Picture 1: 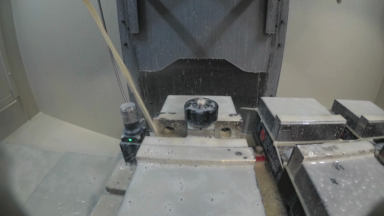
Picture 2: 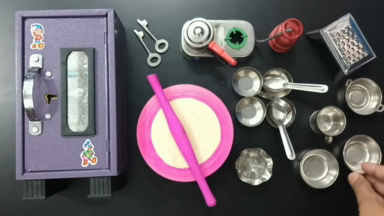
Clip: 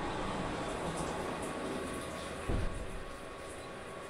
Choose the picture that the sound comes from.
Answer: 1